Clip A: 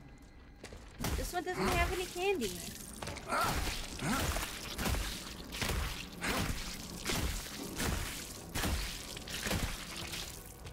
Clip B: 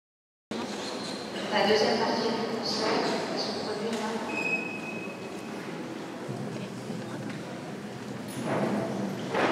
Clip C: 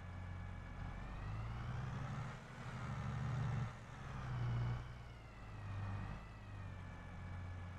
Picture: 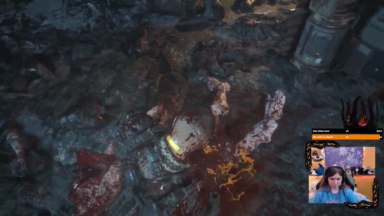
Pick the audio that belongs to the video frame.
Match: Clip A